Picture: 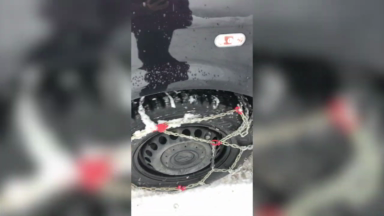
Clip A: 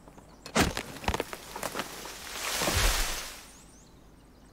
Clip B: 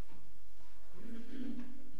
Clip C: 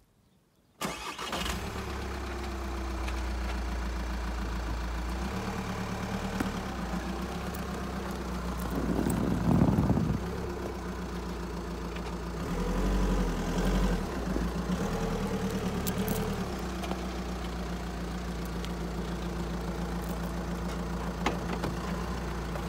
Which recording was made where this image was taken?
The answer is C